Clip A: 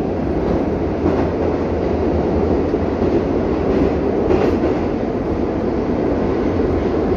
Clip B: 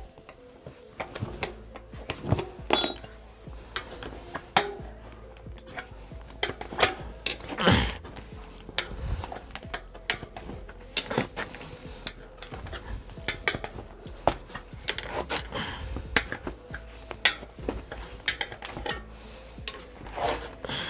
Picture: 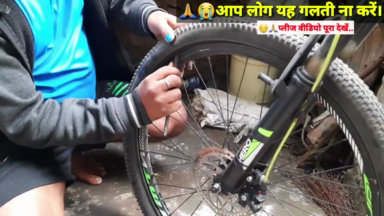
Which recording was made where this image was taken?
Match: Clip B